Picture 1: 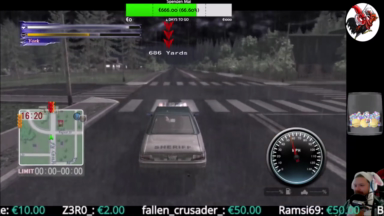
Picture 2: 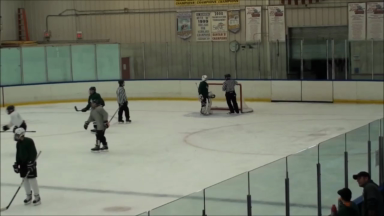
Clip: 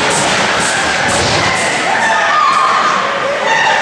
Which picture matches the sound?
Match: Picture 2